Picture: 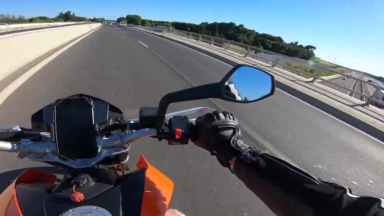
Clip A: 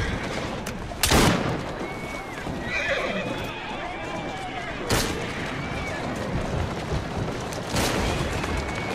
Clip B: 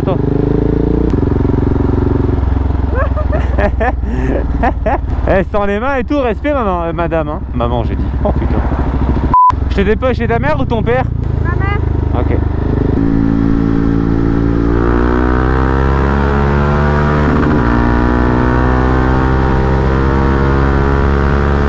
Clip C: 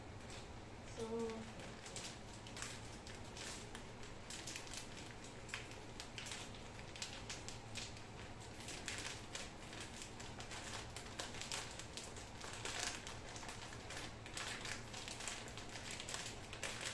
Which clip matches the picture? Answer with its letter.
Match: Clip B